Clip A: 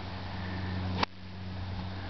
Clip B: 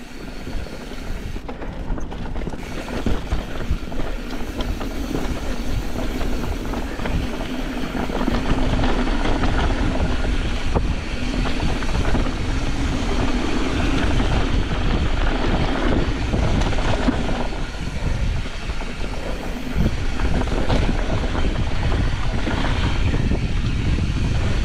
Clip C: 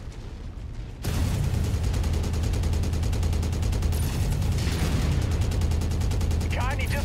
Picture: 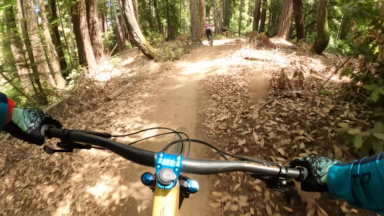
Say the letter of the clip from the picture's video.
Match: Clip B